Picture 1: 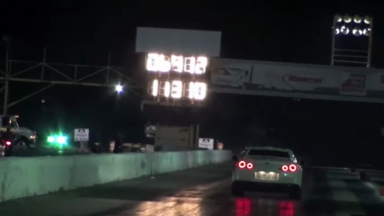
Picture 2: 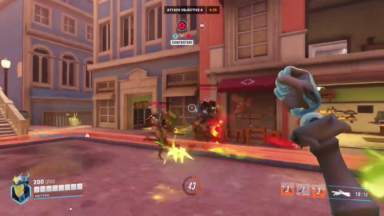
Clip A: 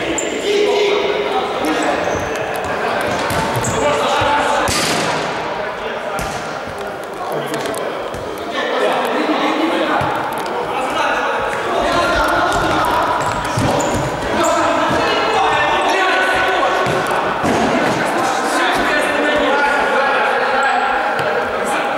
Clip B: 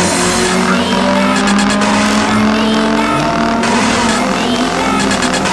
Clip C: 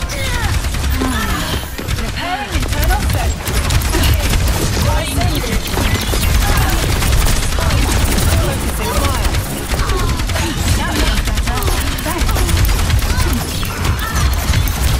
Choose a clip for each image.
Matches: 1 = B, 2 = C